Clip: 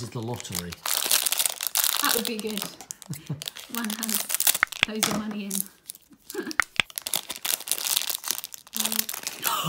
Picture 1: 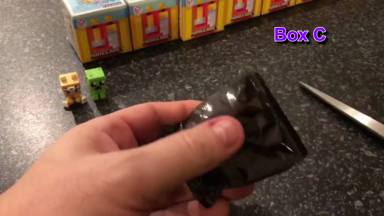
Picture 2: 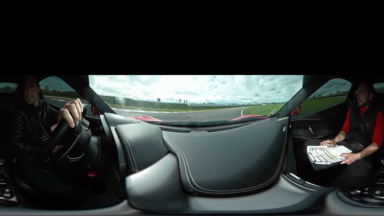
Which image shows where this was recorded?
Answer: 1